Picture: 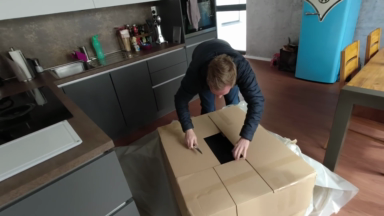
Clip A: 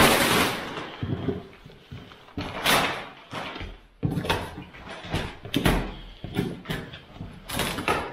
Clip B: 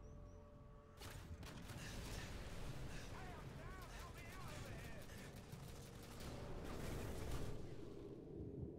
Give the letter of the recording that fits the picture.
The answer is A